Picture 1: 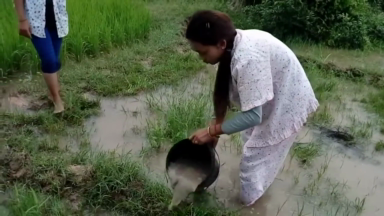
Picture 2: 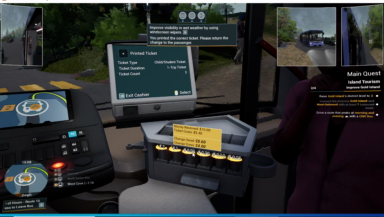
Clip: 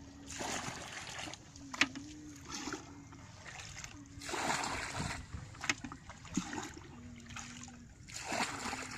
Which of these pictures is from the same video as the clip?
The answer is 1